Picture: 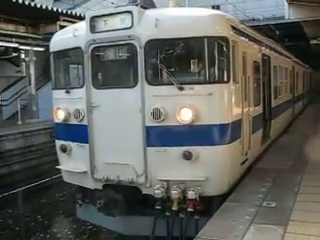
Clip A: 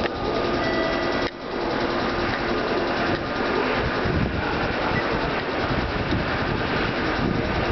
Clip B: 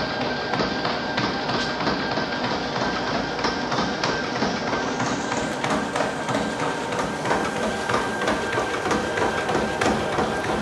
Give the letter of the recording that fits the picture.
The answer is A